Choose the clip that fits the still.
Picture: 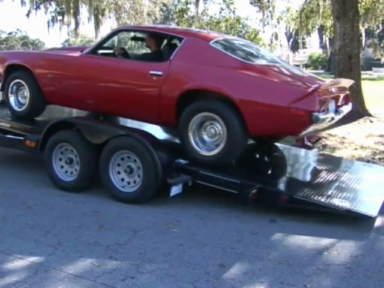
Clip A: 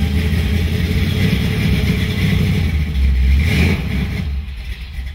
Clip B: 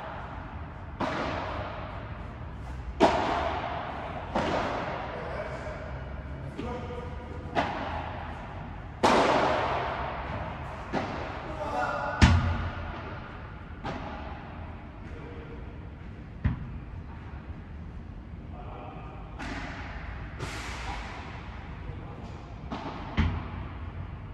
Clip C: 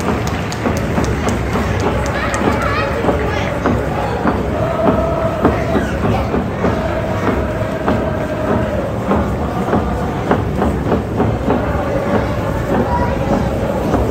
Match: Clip A